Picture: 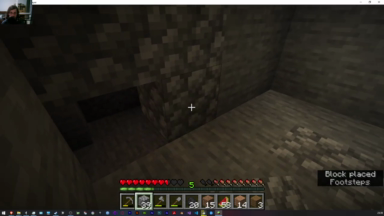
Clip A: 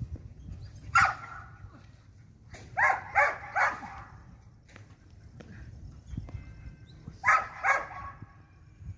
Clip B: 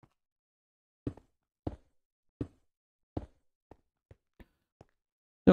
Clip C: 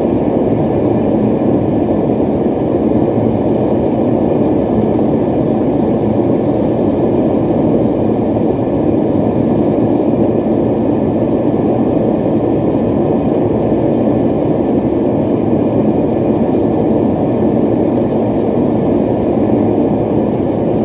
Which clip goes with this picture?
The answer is B